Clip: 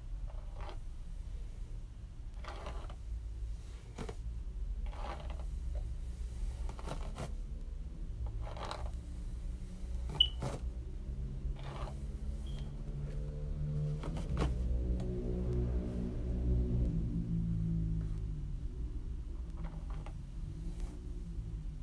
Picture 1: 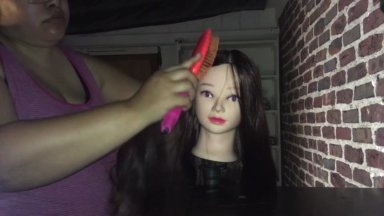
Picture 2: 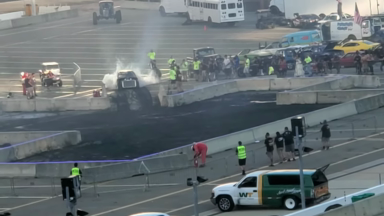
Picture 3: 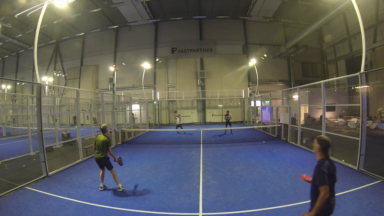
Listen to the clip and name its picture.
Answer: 1